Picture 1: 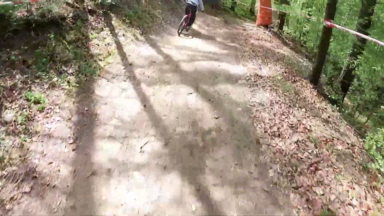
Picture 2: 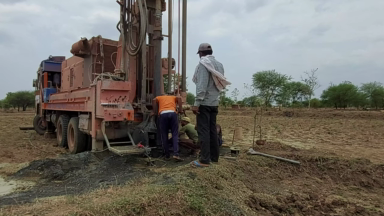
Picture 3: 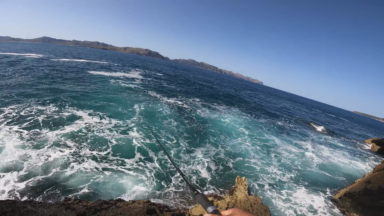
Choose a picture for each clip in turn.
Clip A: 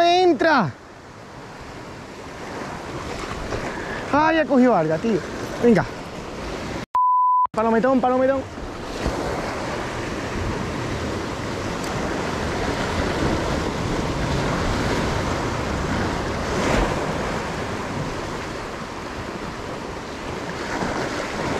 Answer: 3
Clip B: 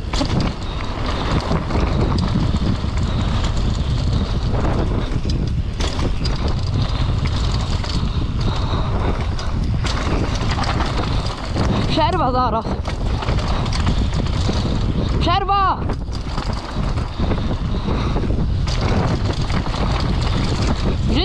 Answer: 1